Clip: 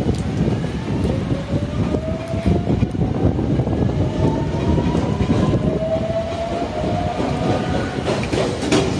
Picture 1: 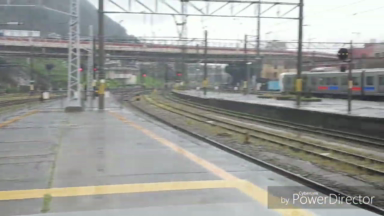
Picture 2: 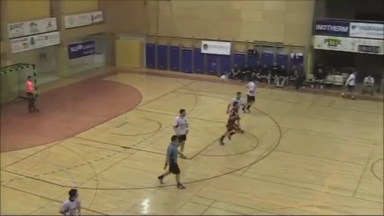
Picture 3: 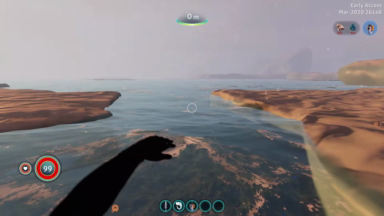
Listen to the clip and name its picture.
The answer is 1